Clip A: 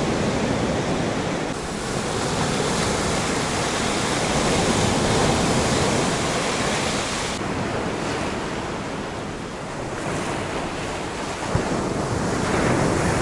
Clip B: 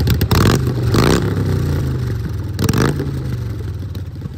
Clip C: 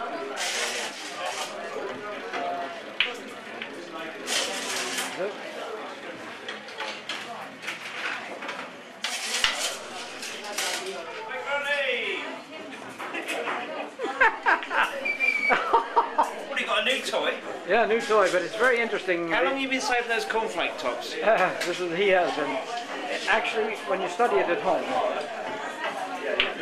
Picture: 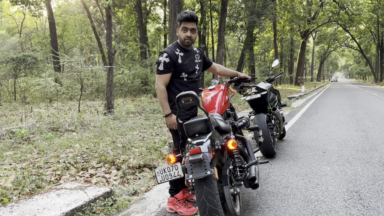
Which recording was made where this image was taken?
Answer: B